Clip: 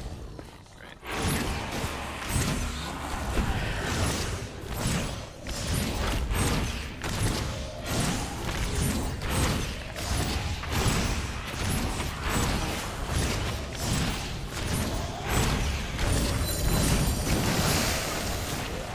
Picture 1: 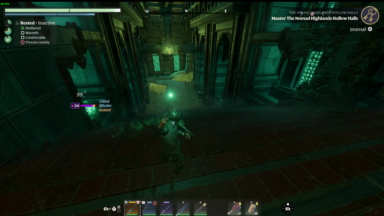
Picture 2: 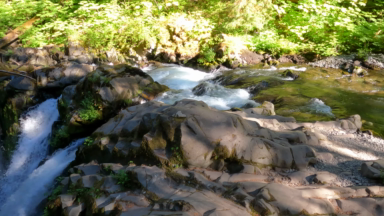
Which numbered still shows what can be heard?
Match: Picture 1